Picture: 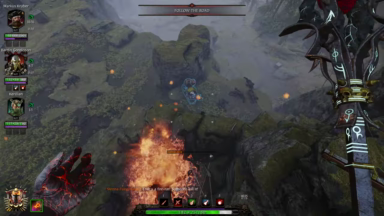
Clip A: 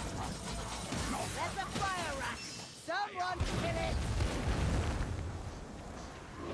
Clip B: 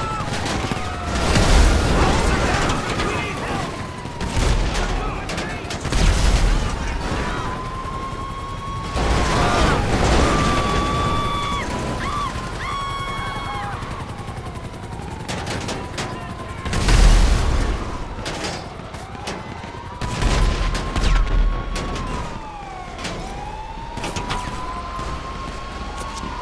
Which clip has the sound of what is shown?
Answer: A